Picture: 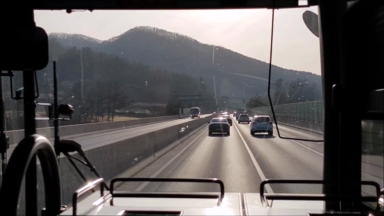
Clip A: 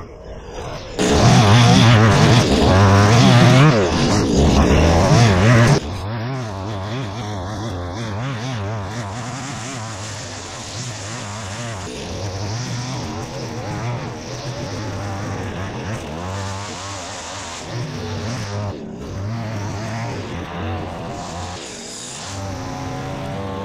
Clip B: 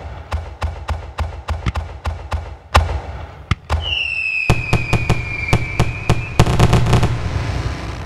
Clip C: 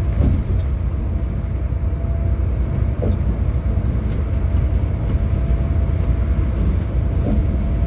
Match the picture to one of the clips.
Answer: C